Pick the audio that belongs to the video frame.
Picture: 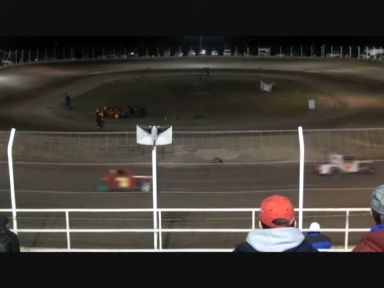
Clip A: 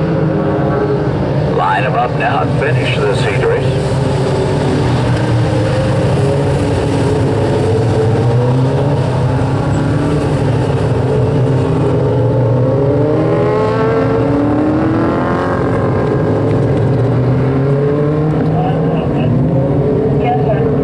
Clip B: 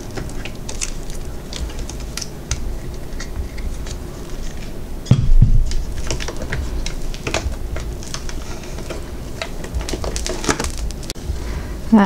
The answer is A